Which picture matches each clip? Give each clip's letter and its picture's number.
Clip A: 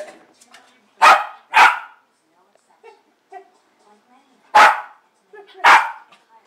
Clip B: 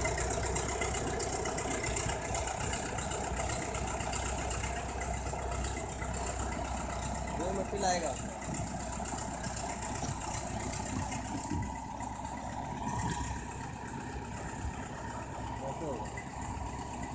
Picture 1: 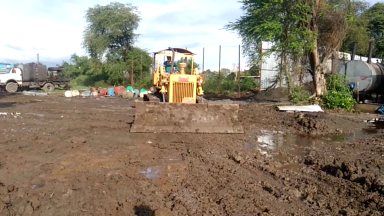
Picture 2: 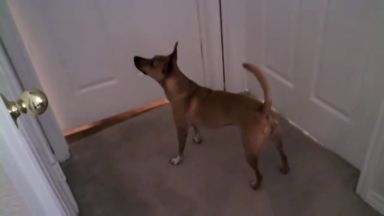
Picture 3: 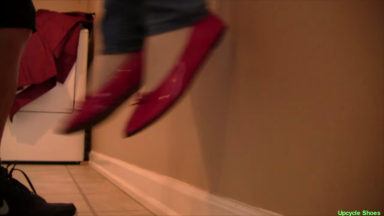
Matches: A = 2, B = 1